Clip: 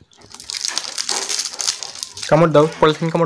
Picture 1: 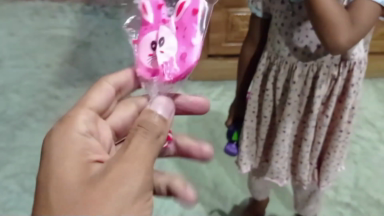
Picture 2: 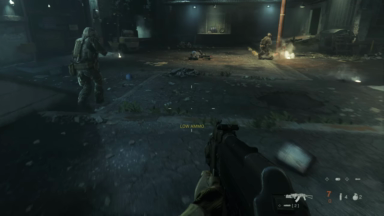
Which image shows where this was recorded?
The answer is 1